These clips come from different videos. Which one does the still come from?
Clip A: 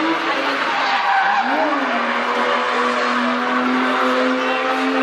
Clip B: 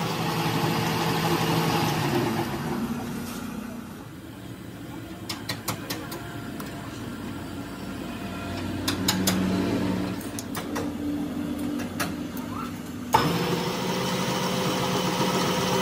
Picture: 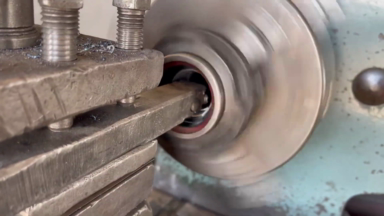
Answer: B